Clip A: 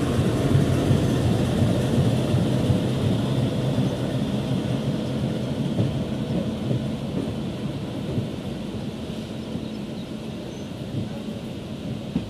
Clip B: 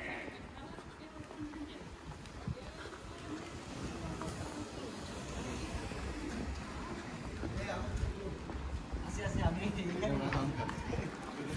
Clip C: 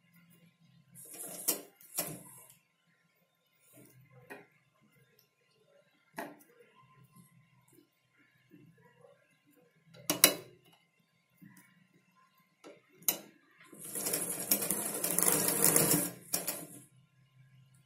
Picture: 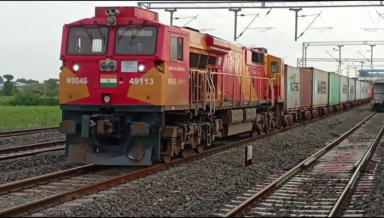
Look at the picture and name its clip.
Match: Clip A